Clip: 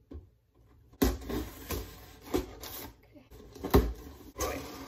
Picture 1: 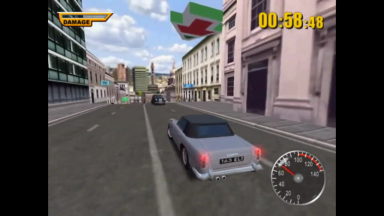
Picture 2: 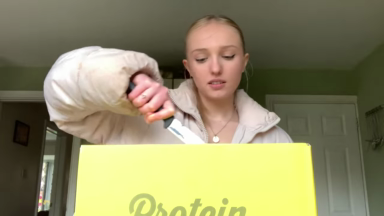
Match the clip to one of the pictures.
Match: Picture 2